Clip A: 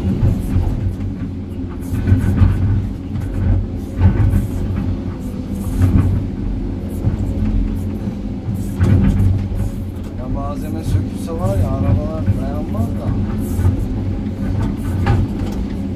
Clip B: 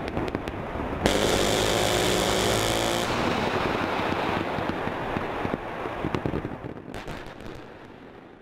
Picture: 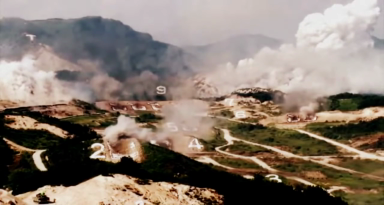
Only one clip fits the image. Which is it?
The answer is B